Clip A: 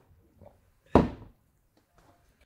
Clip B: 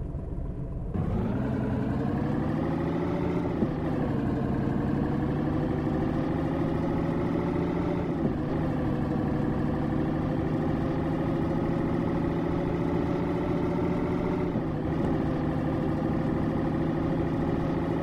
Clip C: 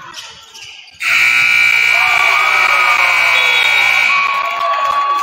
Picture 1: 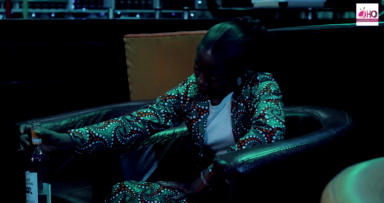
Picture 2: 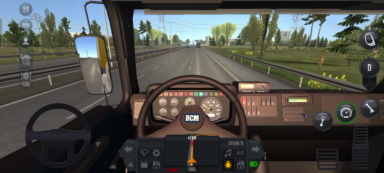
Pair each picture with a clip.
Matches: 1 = A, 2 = B